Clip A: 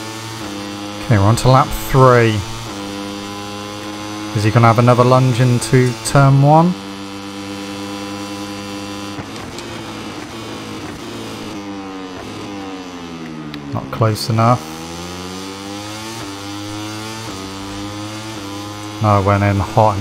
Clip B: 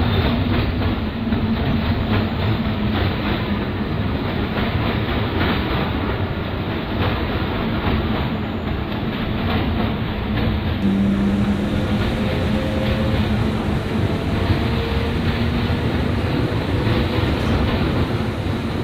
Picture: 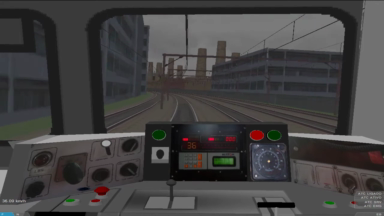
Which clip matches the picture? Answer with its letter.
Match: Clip B